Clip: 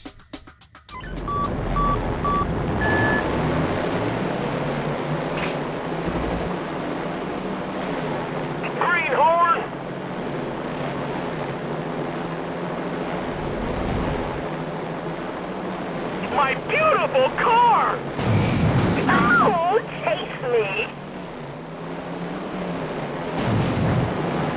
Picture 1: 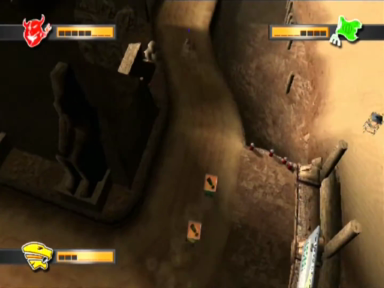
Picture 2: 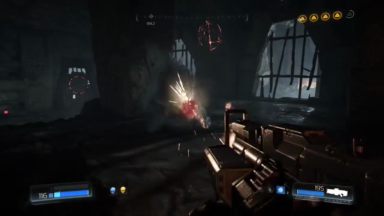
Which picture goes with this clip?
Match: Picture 1